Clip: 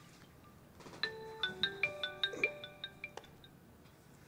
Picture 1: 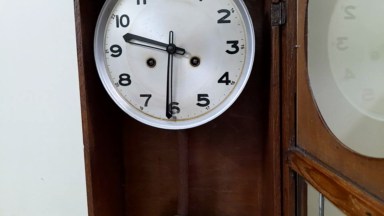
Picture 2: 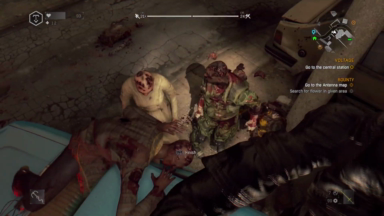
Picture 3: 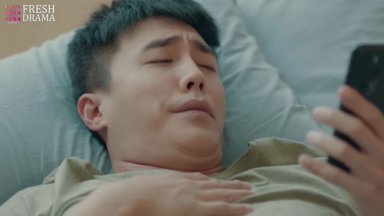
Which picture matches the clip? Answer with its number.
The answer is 3